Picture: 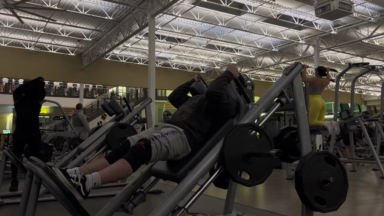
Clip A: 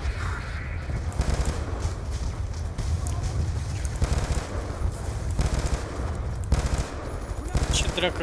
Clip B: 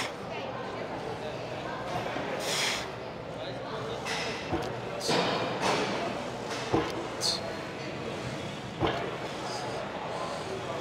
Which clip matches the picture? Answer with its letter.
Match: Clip B